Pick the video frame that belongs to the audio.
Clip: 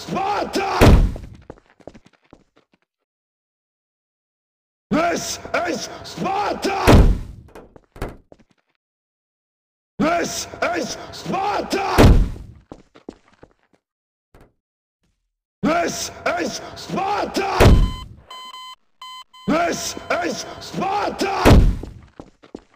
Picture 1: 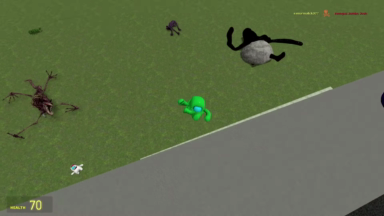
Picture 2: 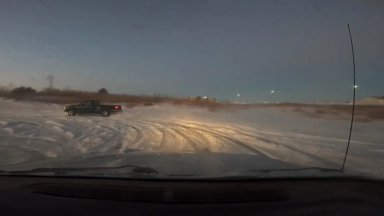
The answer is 1